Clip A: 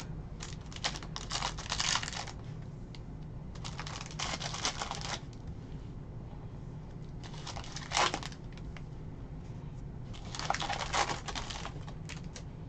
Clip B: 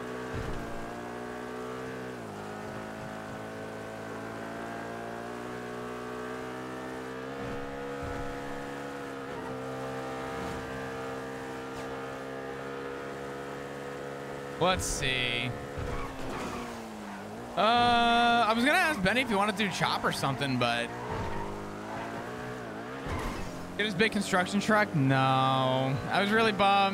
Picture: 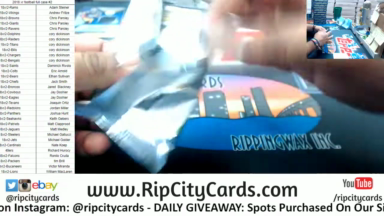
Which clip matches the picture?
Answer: A